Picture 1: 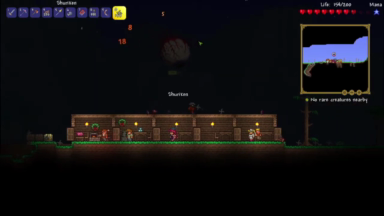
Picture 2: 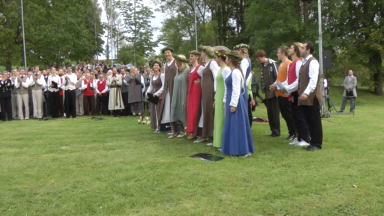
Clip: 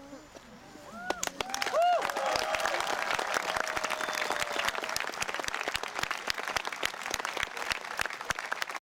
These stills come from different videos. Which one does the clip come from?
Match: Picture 2